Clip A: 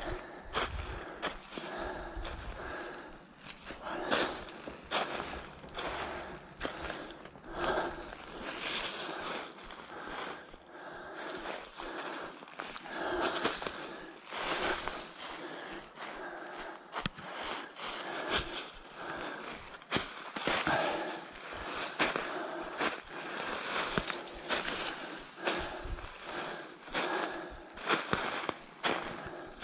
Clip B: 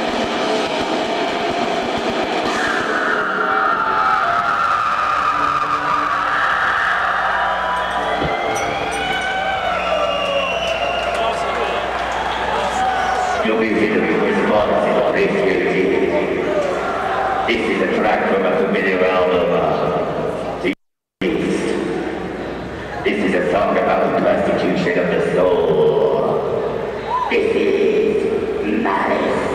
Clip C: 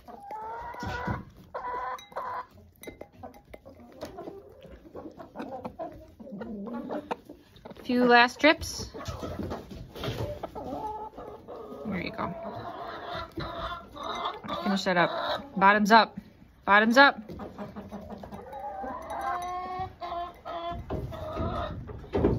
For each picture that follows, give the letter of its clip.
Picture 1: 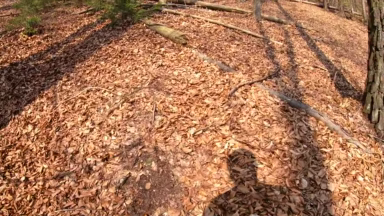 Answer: A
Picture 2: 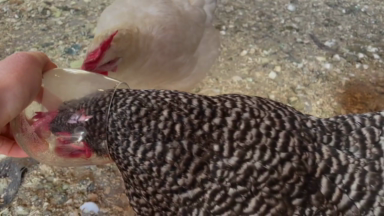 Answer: C